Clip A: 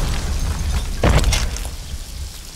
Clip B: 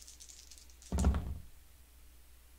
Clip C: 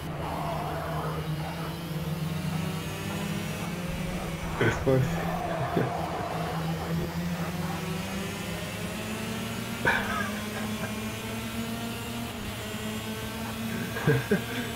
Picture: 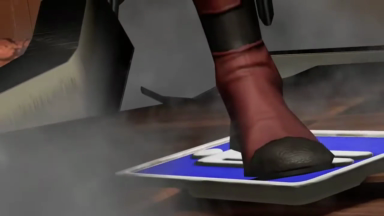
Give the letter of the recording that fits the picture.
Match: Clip A